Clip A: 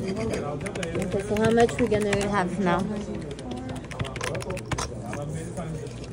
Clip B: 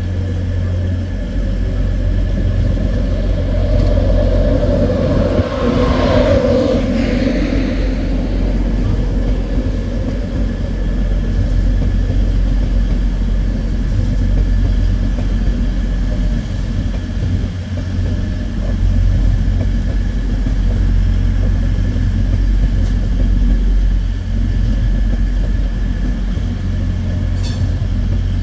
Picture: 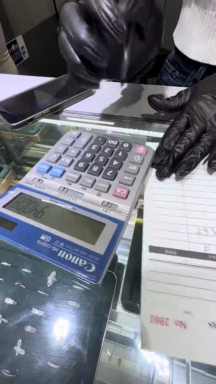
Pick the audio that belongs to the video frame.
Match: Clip A